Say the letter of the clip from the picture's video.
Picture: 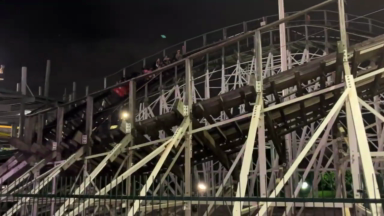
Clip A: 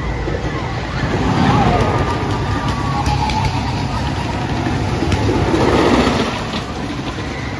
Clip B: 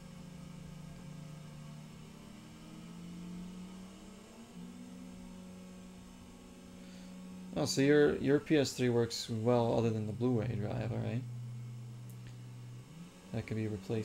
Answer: A